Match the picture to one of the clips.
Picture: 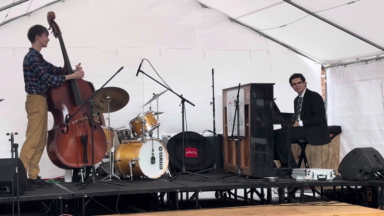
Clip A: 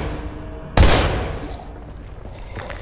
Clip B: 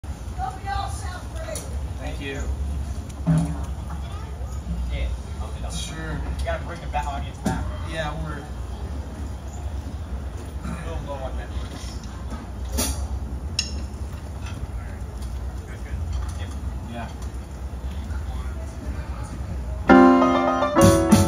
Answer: B